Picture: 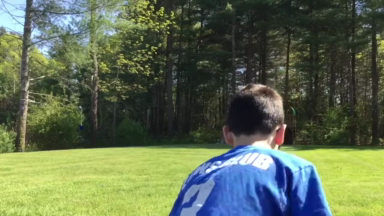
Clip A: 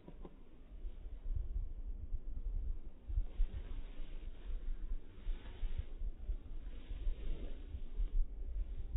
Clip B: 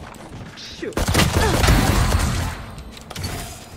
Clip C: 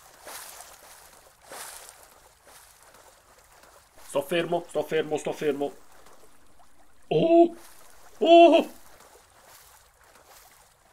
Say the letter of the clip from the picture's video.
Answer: A